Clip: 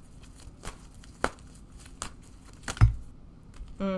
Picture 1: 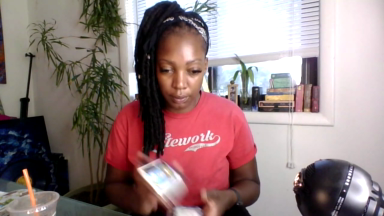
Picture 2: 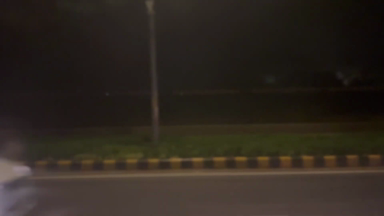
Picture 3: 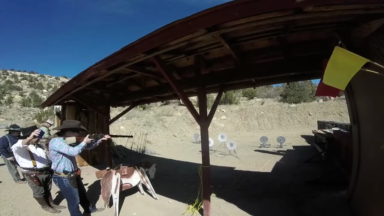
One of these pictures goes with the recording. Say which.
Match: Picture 1